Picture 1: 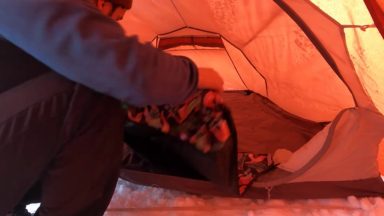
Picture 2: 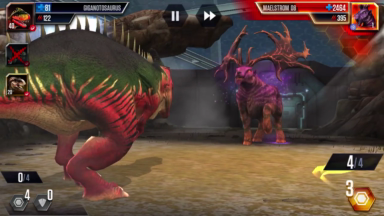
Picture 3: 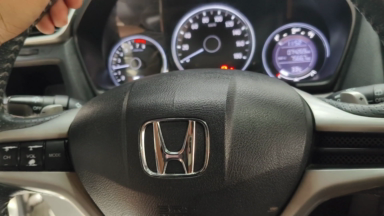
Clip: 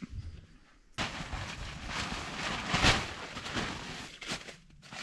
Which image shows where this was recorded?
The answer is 1